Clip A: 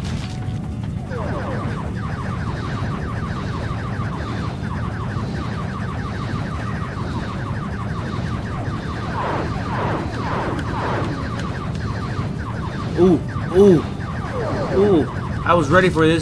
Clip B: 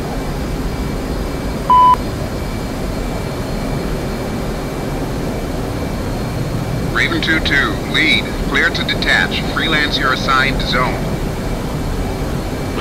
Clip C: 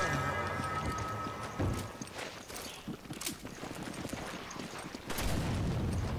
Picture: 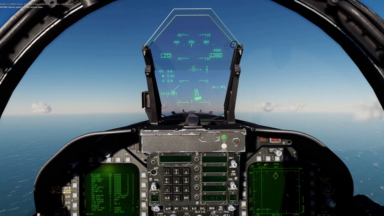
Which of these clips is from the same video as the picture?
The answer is B